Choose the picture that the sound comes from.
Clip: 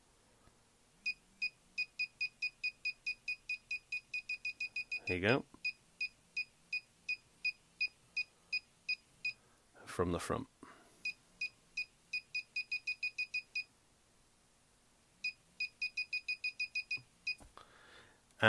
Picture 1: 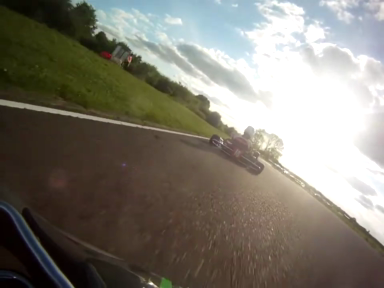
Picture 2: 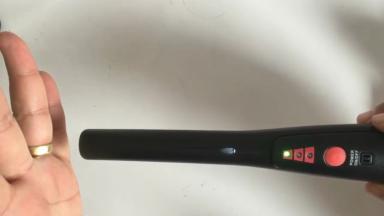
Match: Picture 2